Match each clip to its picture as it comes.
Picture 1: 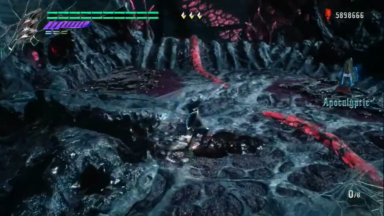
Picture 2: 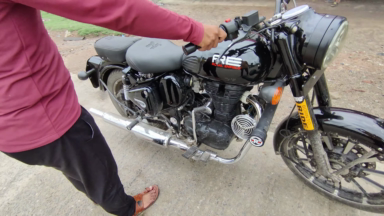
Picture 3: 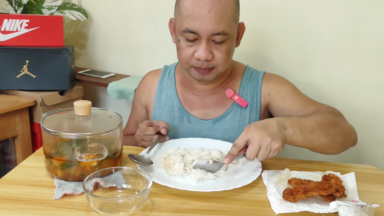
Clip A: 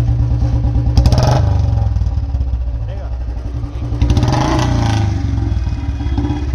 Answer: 2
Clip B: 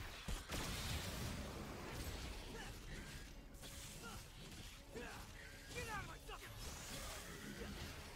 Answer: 1